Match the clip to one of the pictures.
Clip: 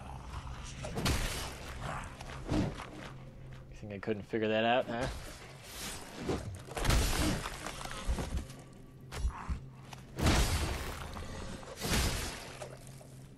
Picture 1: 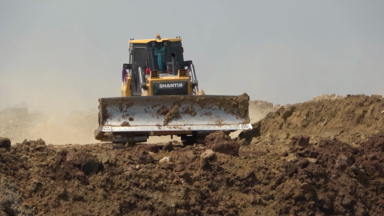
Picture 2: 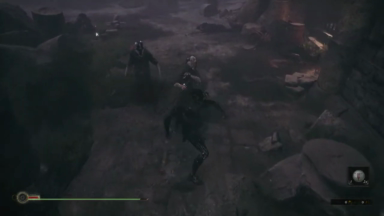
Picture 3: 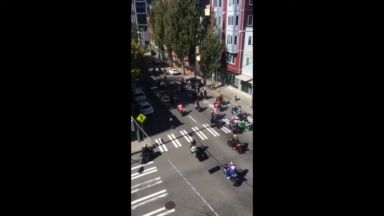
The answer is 2